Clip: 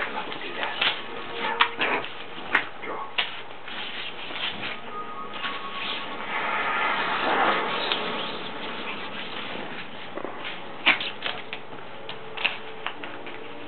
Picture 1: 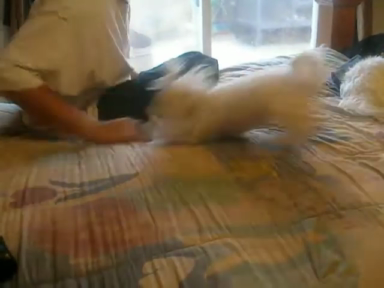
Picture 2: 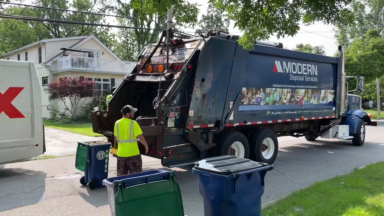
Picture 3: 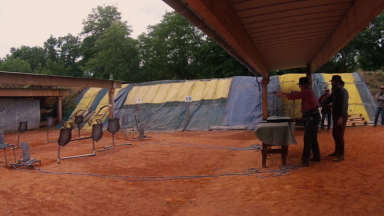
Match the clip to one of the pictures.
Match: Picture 1